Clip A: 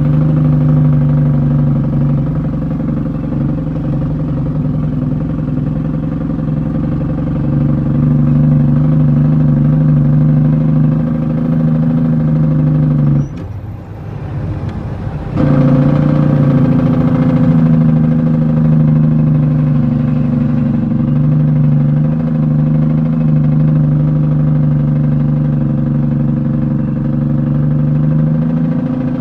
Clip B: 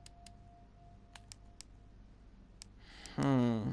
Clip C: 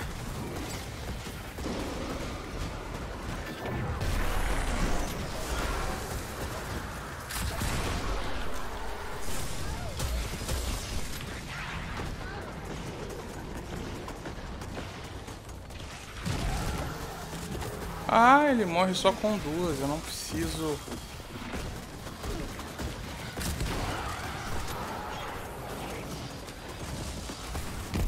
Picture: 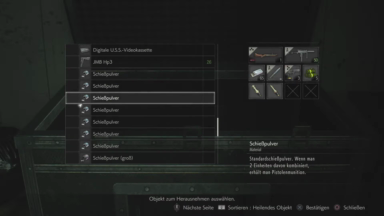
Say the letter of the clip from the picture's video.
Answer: B